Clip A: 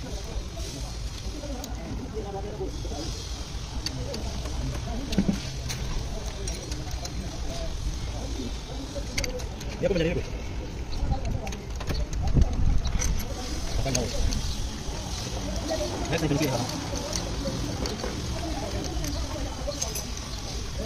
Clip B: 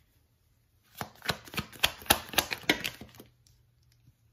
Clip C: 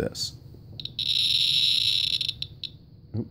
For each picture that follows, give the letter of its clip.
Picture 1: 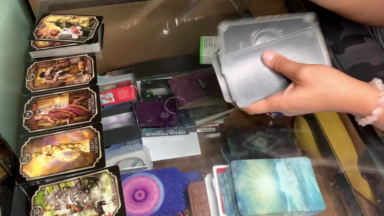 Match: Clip B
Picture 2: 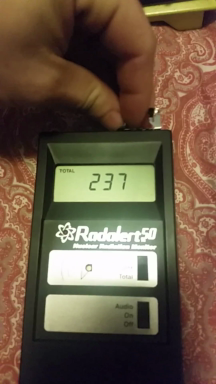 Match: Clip C